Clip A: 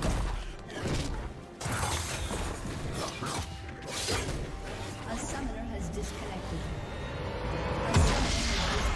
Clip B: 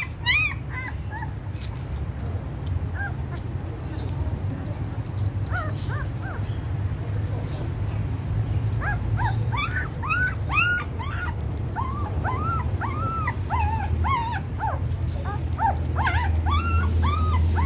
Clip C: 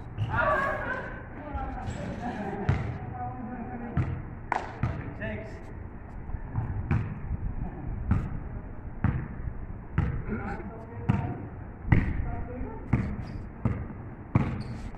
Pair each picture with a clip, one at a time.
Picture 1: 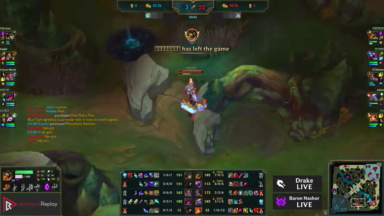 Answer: A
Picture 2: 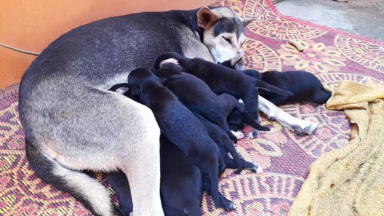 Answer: B